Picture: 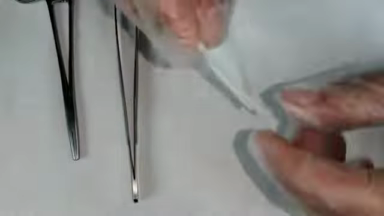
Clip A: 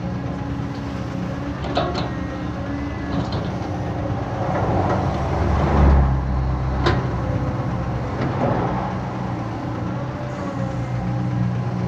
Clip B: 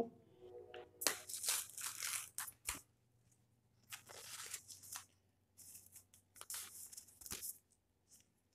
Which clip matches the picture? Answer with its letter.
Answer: B